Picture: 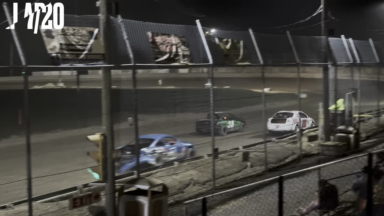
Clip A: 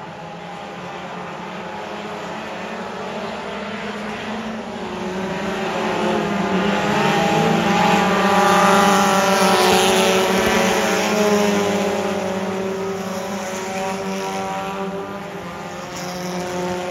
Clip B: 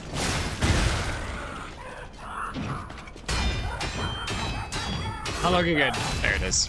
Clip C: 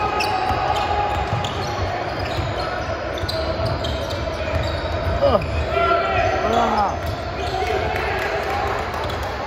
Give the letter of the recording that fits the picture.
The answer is A